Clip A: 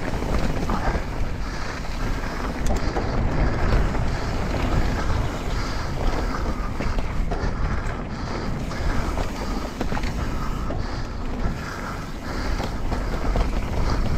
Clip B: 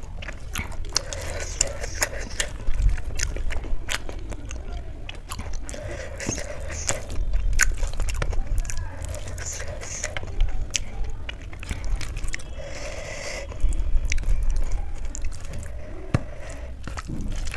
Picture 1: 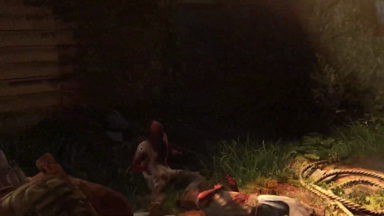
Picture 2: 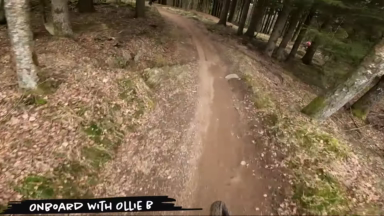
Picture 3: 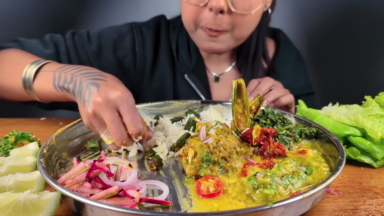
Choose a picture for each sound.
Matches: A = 2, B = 3